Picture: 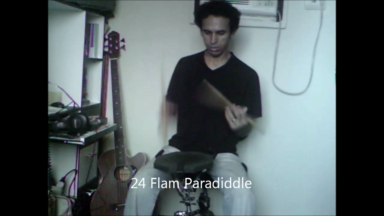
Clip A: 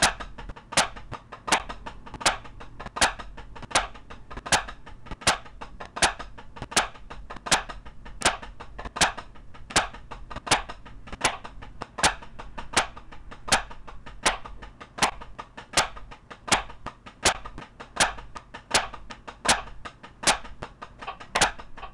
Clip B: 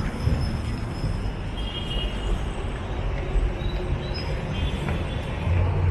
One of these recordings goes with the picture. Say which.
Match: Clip A